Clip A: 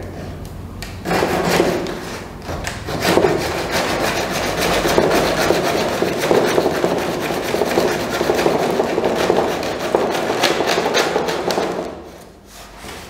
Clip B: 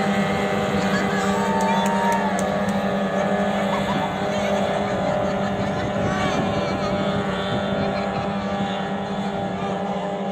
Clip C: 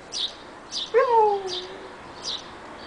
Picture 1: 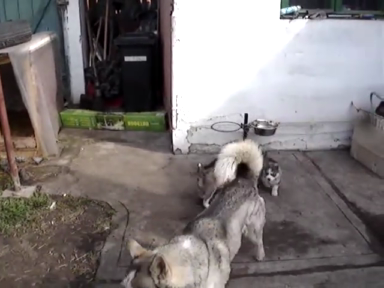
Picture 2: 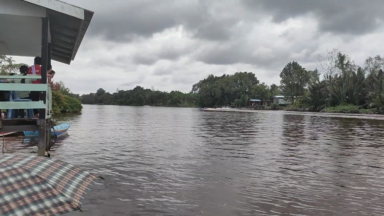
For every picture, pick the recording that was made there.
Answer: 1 C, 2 B